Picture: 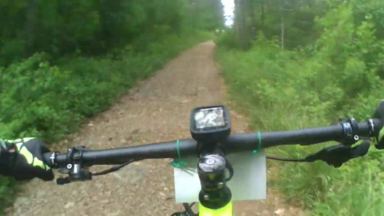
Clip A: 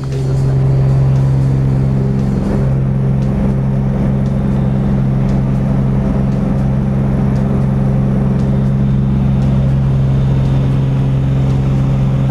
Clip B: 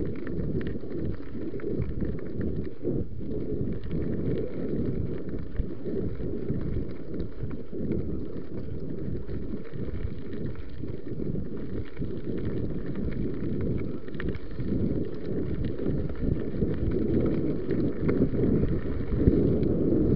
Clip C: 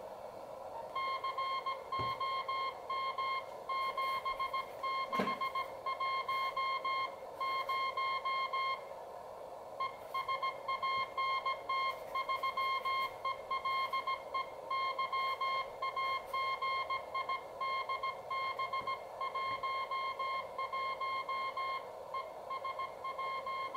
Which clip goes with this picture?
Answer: B